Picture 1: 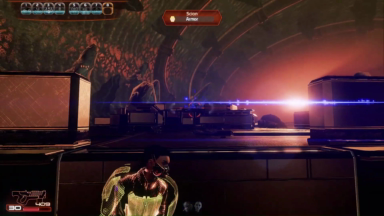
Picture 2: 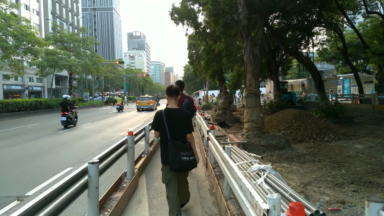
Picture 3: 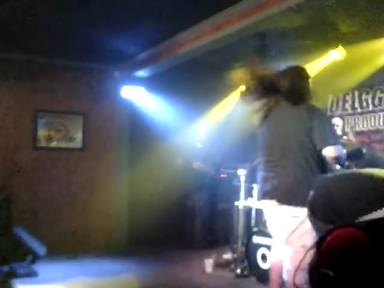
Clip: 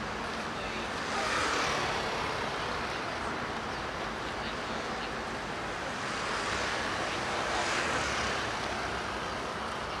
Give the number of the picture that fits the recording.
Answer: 2